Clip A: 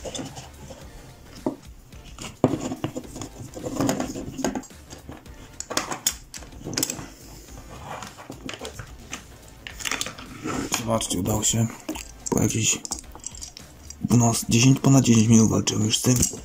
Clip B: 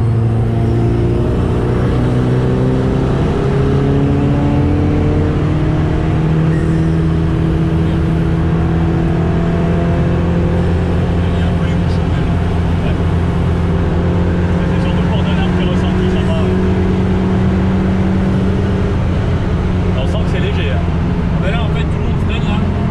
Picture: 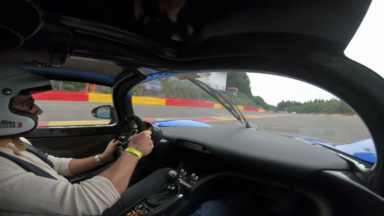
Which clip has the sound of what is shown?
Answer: B